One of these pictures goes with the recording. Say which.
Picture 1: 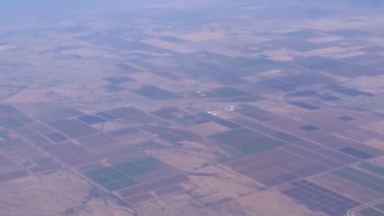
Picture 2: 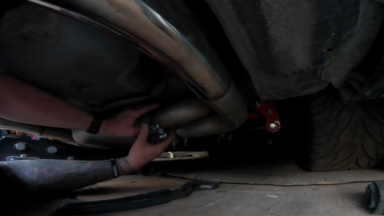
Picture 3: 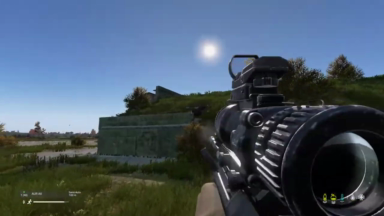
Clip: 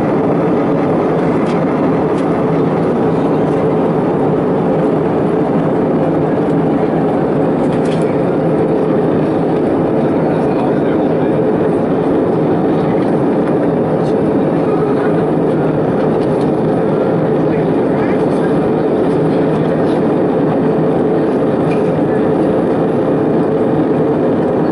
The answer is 1